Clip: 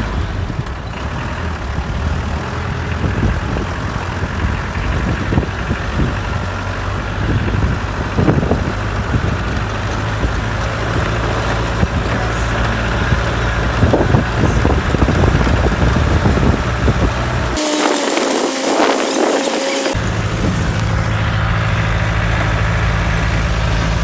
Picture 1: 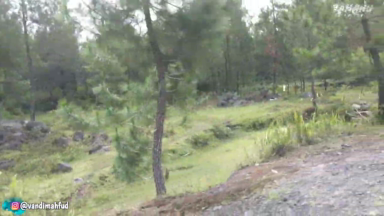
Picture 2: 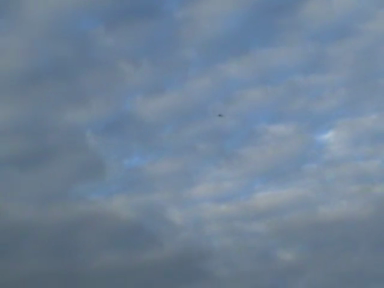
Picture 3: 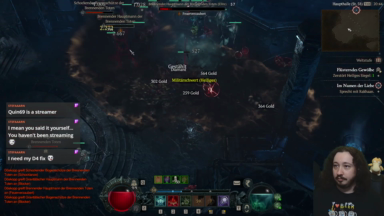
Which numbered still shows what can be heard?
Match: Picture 1